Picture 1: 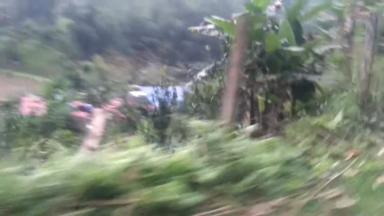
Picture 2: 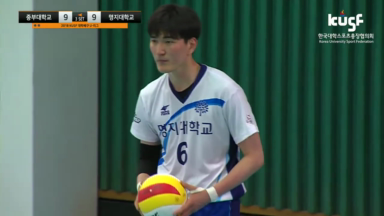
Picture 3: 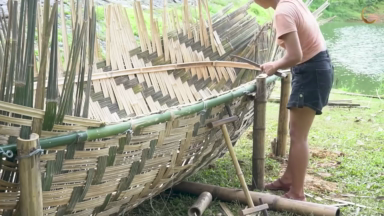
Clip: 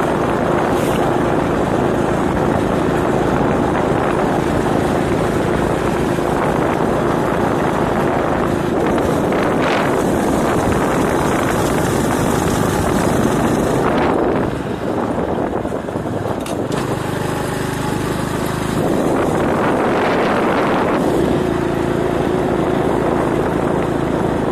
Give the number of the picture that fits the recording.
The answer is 1